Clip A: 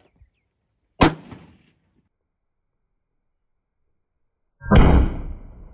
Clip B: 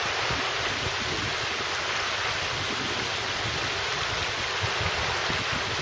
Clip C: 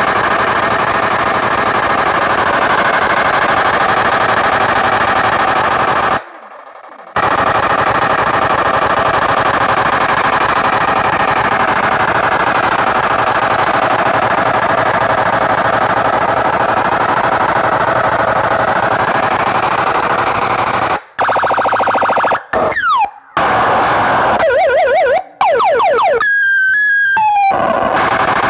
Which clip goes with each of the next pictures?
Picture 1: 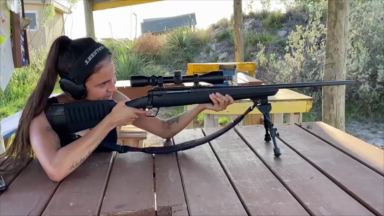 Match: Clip A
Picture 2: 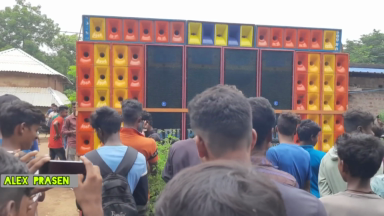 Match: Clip C